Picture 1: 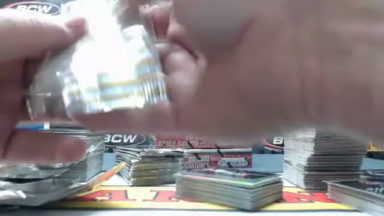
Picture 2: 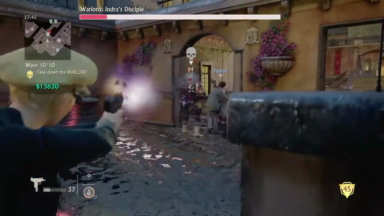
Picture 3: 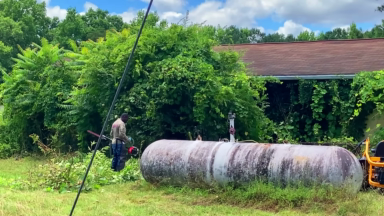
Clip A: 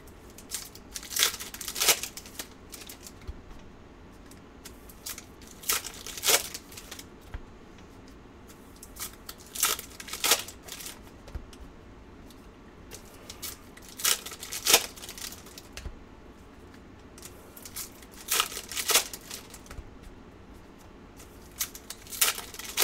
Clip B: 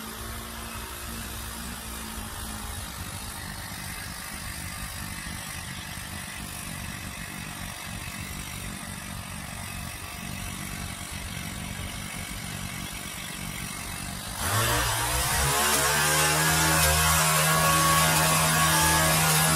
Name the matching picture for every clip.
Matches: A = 1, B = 3